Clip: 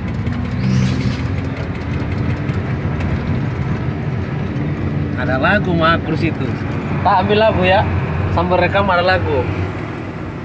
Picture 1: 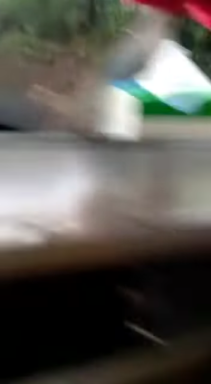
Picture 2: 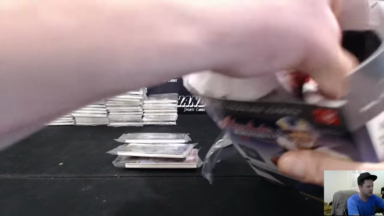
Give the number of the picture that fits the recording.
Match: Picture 1